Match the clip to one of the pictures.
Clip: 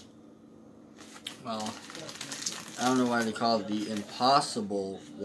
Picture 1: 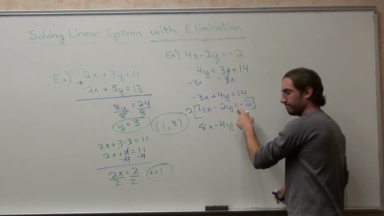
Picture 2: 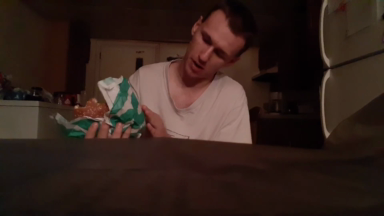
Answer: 2